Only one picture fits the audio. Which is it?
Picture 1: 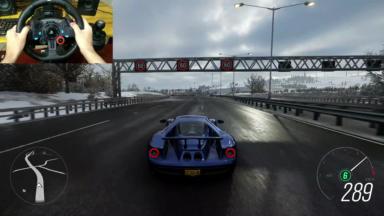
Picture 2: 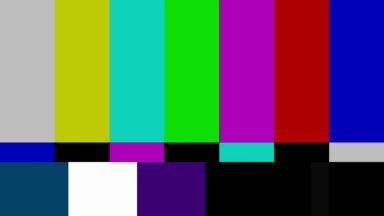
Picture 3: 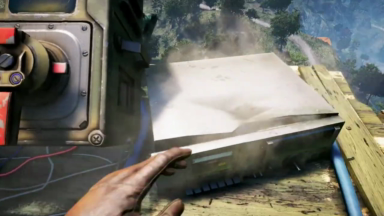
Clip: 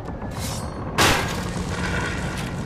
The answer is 3